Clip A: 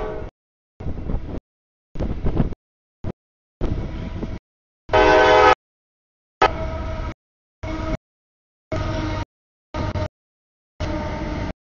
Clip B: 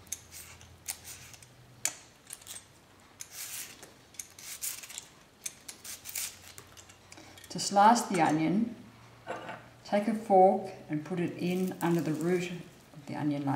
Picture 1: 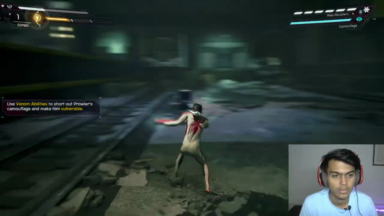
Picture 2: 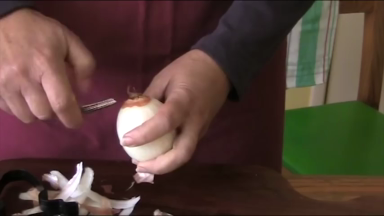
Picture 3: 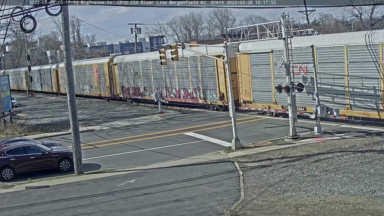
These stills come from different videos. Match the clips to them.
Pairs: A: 3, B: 2